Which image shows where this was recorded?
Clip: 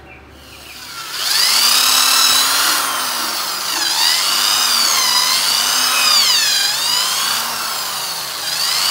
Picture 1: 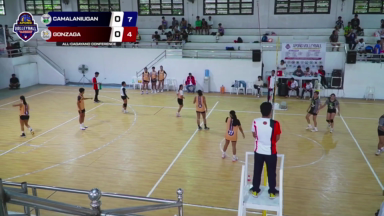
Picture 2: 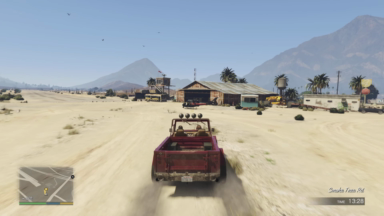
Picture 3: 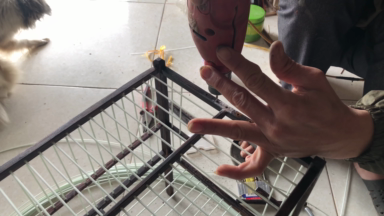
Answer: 3